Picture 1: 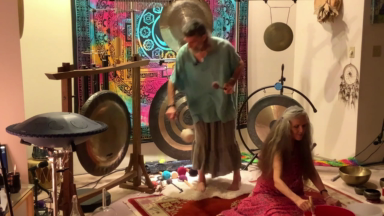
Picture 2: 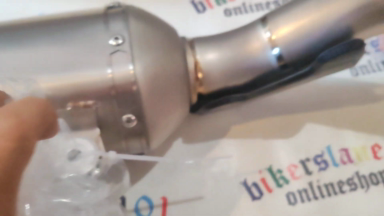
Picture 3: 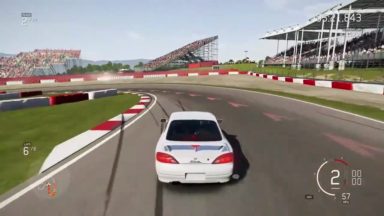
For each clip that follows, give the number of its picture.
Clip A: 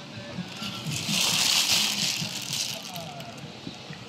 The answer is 2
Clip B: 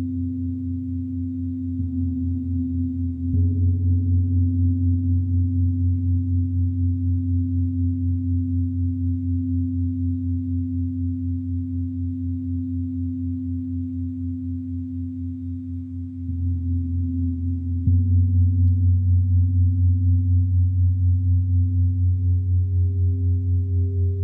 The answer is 1